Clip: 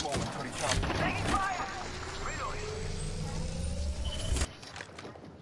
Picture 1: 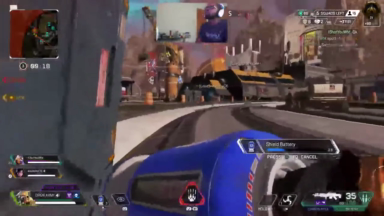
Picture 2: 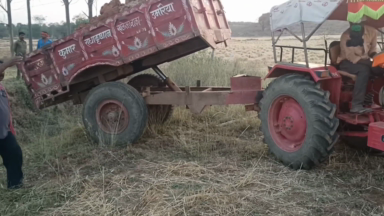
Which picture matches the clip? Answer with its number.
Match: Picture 1